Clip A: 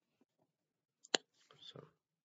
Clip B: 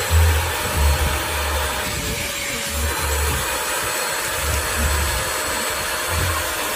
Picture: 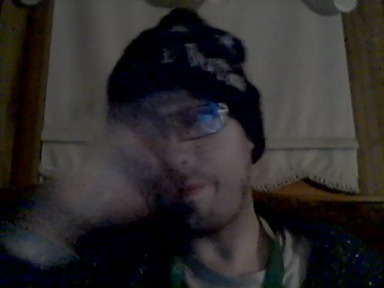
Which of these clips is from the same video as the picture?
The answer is A